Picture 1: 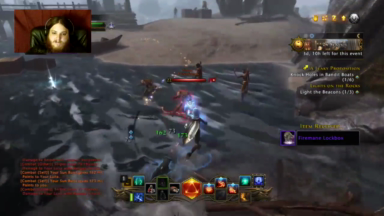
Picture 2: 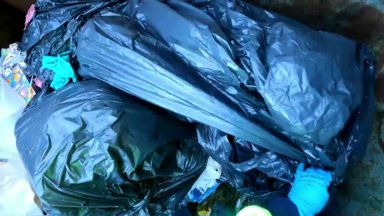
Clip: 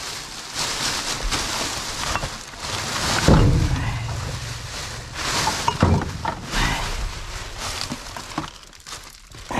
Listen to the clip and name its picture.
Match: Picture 2